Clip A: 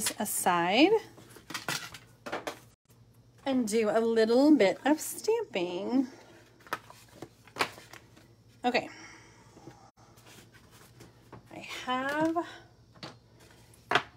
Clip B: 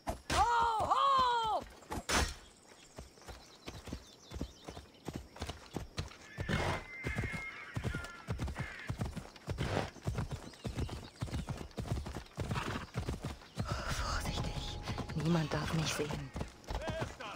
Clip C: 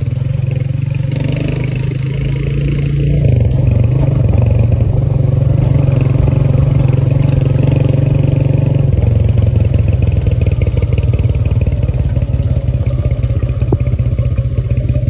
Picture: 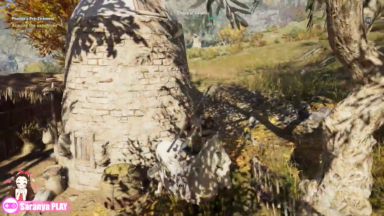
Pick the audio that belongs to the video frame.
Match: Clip B